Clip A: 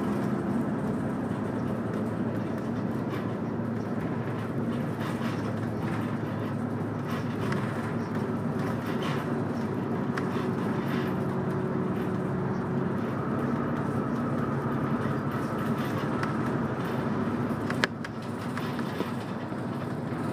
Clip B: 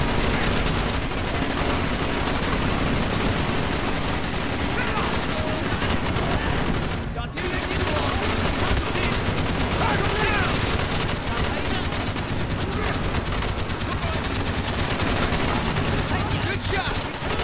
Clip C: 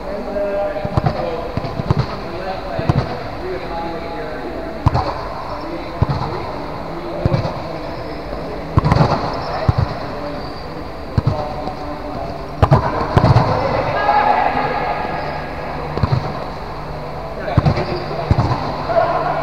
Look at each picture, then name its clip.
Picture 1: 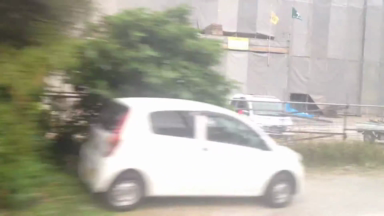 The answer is A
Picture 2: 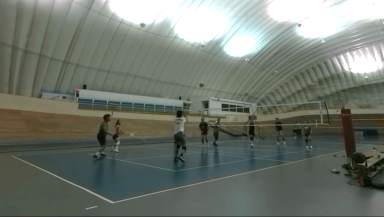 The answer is C